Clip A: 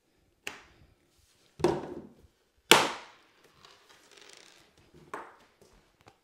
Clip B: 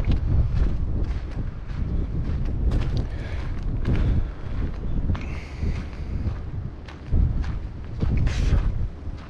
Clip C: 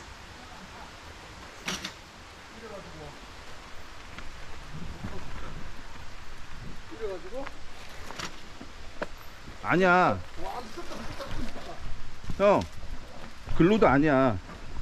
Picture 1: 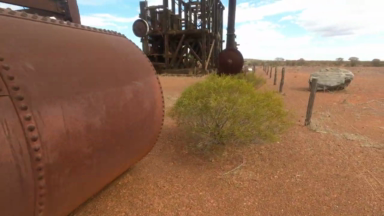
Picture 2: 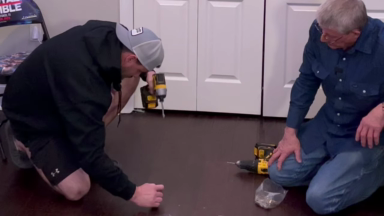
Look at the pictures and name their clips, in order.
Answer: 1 B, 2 A